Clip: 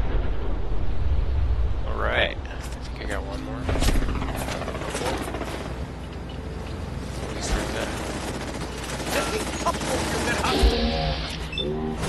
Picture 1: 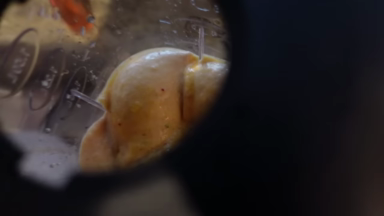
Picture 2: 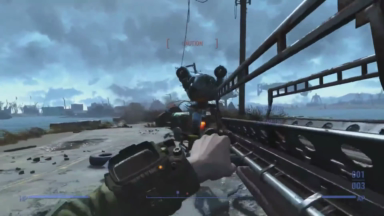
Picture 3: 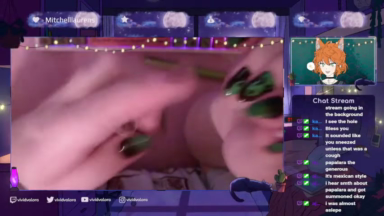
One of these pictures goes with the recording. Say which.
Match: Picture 2